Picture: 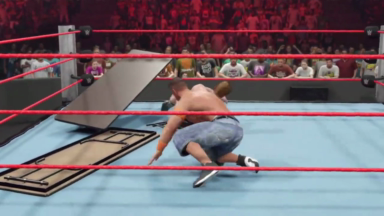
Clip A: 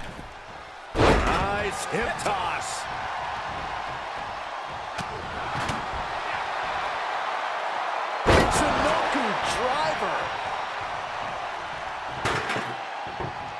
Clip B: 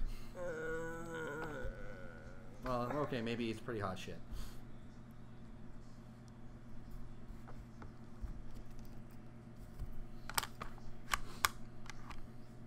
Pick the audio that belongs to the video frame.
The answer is A